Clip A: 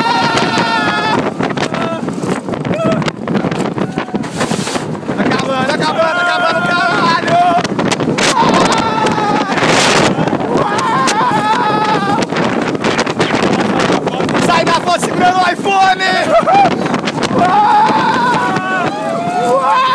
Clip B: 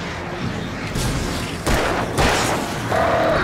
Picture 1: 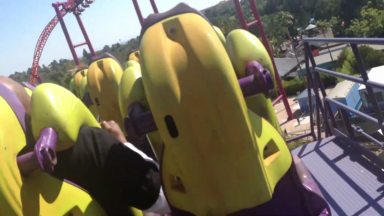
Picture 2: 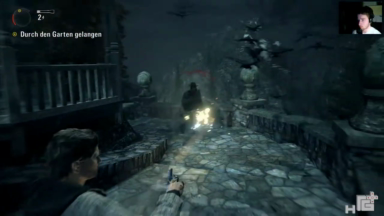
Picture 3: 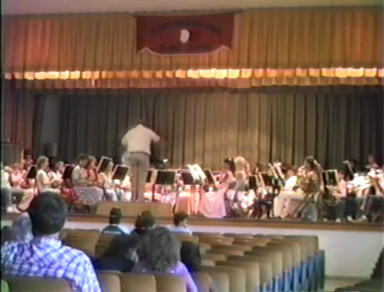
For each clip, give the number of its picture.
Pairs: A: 1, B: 2